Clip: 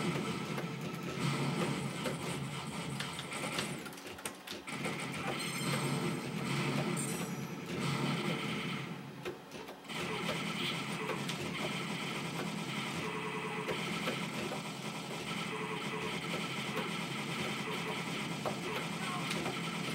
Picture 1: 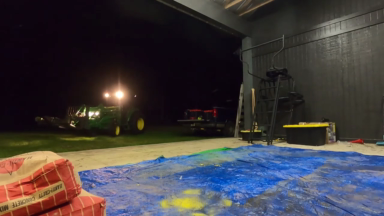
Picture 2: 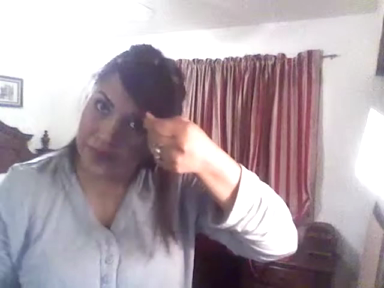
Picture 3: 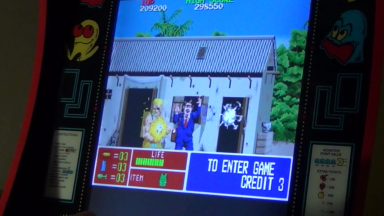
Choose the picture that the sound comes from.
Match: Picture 3